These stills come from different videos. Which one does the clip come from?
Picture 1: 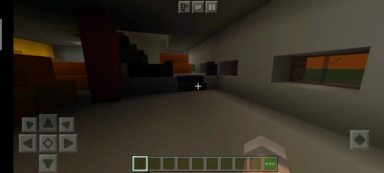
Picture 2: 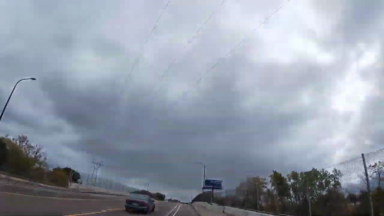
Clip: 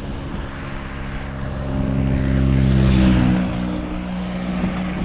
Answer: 2